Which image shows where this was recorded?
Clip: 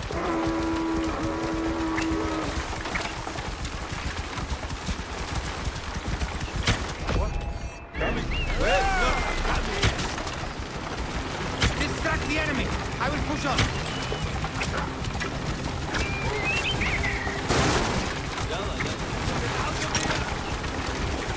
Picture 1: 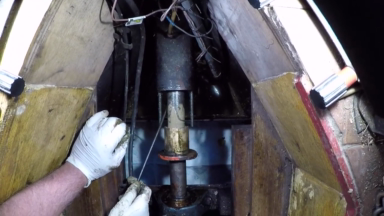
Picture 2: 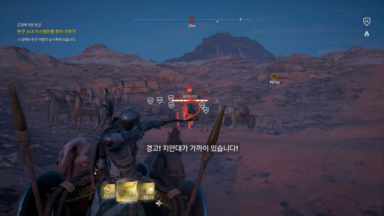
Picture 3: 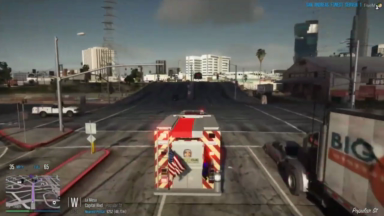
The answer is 2